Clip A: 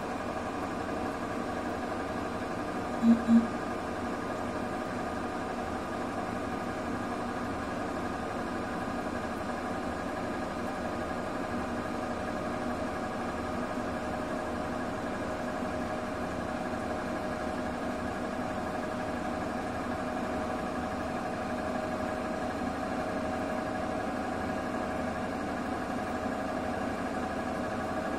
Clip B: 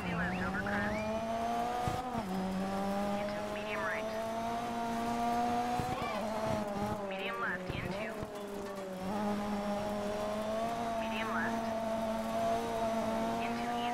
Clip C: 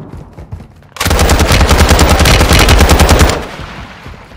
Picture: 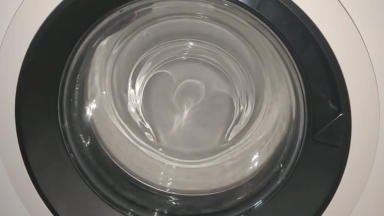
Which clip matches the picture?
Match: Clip A